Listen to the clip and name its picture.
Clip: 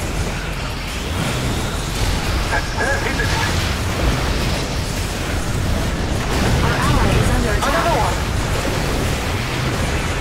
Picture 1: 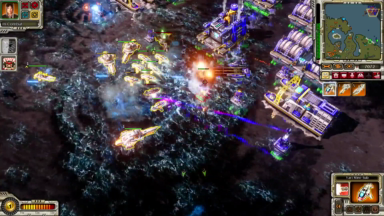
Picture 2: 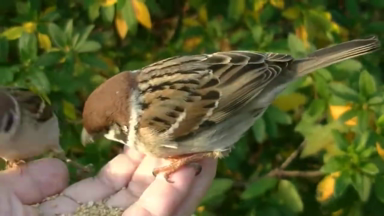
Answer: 1